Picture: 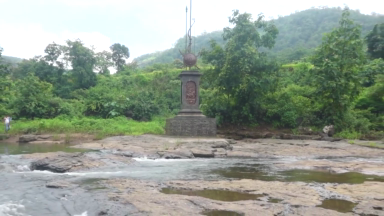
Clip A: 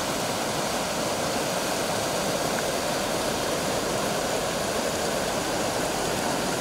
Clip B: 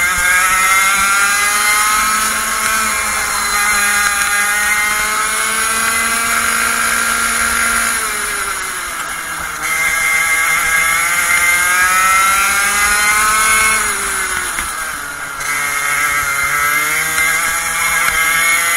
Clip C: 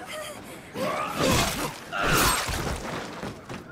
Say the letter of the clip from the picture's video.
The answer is A